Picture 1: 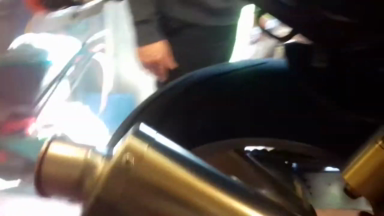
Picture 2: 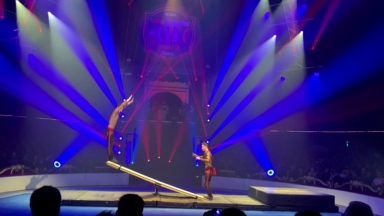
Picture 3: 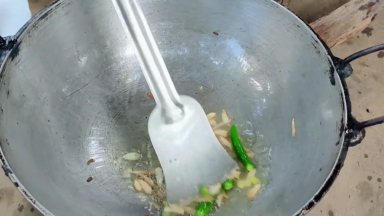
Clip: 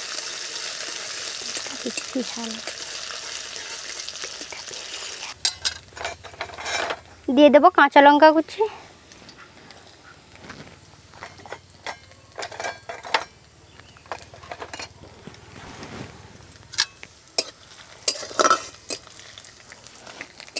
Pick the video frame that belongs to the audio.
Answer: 3